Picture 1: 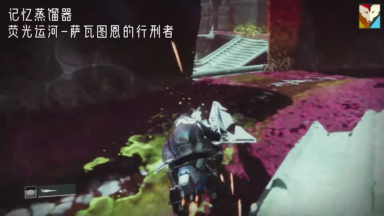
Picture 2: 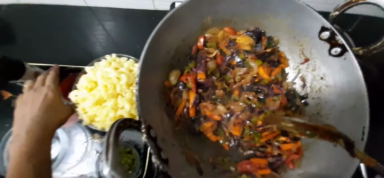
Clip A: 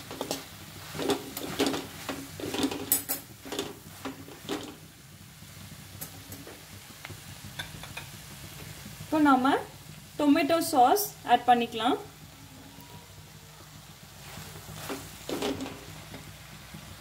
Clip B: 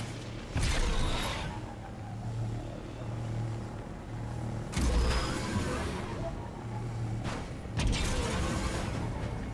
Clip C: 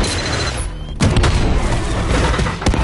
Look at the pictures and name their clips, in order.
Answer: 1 B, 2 A